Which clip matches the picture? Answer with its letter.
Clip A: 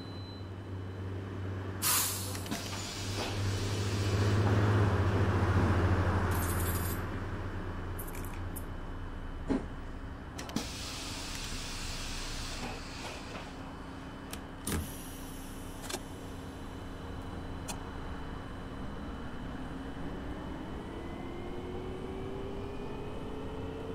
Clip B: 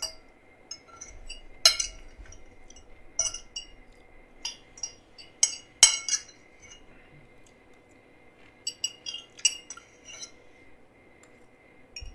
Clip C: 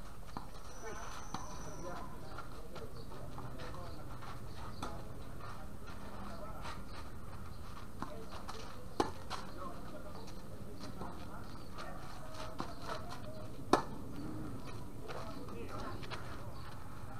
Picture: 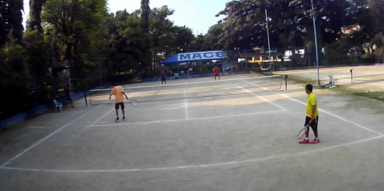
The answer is C